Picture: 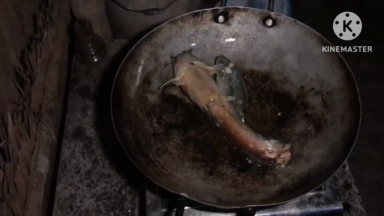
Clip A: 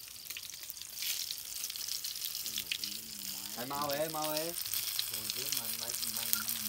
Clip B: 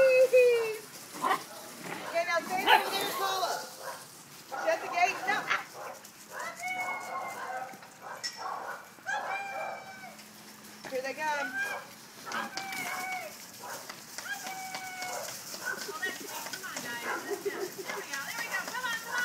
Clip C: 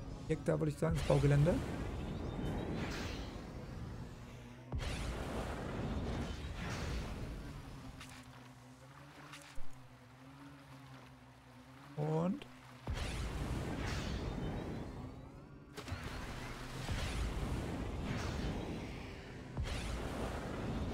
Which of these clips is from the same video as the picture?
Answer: A